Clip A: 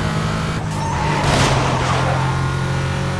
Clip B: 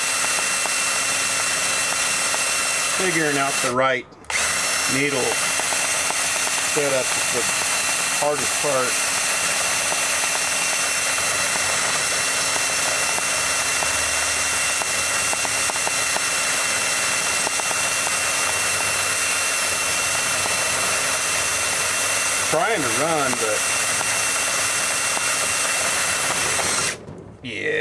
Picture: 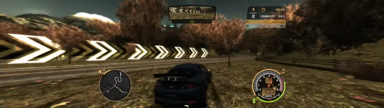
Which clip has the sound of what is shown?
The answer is A